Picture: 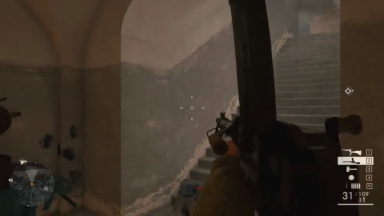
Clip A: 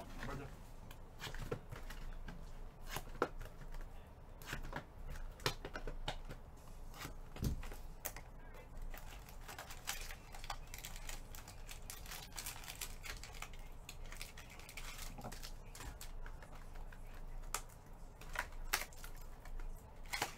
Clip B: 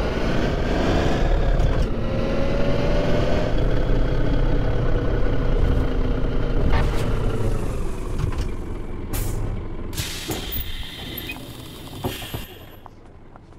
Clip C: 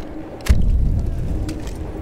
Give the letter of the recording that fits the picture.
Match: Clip C